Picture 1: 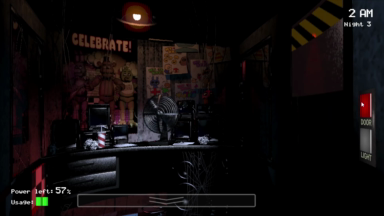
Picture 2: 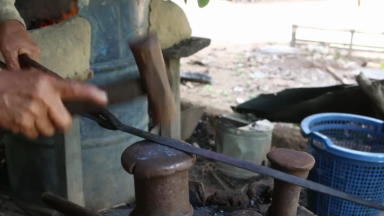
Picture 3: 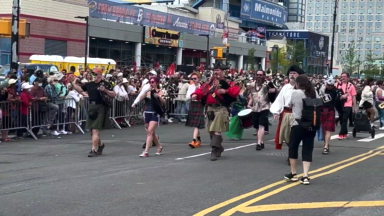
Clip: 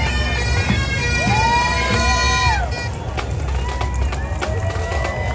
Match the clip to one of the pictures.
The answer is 3